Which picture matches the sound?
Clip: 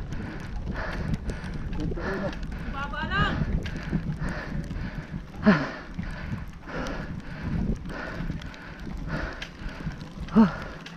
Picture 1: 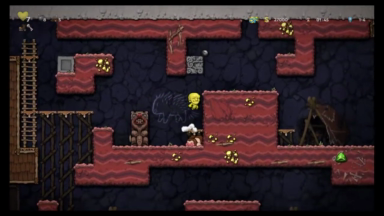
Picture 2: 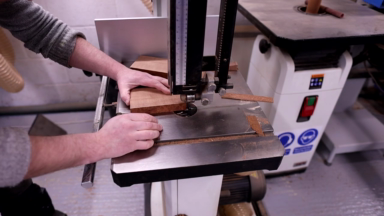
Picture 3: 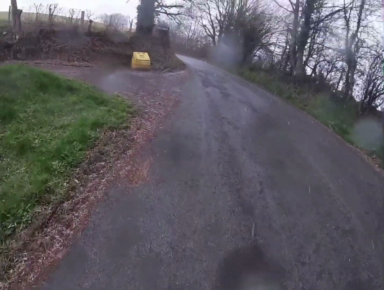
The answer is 3